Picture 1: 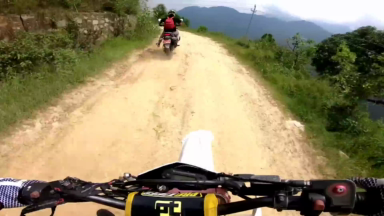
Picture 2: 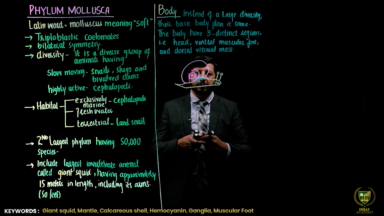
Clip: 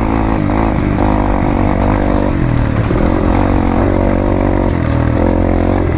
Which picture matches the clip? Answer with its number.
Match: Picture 1